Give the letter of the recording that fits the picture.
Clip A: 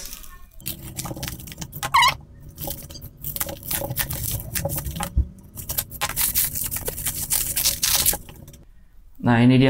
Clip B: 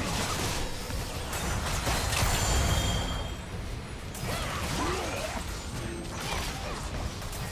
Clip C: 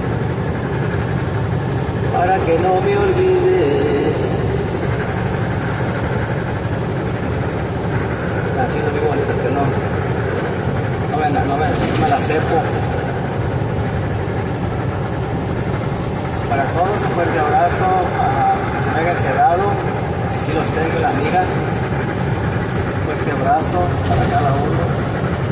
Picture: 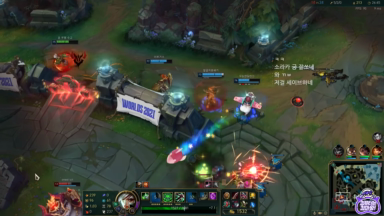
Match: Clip B